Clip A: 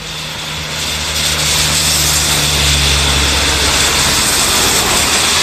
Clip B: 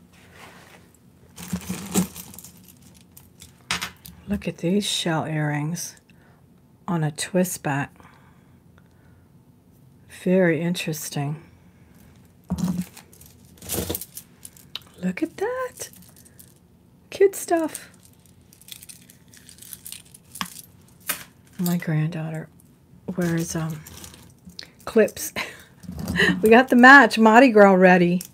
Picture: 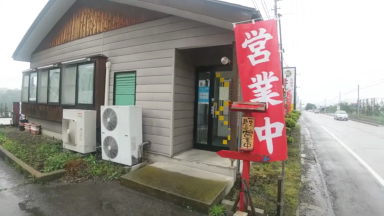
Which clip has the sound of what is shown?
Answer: A